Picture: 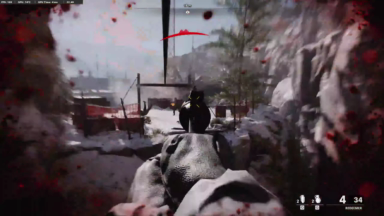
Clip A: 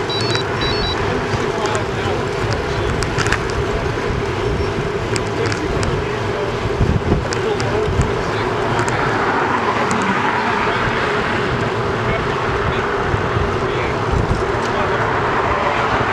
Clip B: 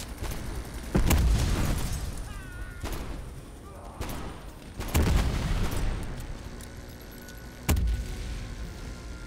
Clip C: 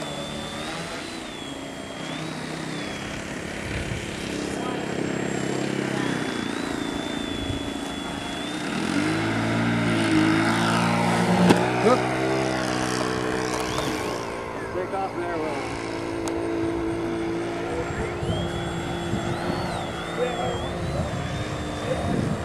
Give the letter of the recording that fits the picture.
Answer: B